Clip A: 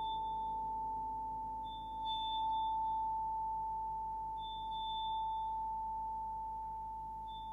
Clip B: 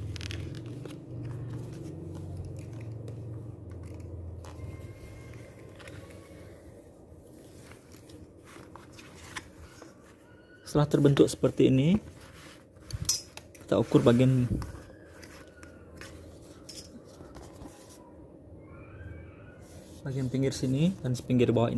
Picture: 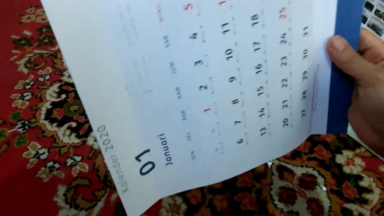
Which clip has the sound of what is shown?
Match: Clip B